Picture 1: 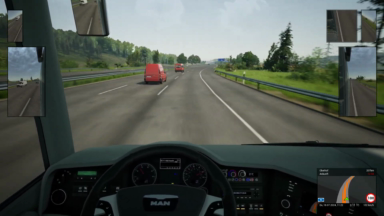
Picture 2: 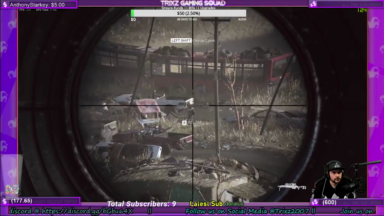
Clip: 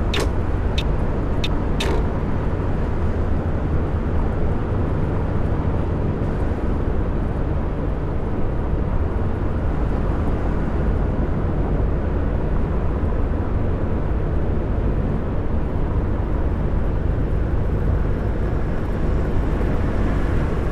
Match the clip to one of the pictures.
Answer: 1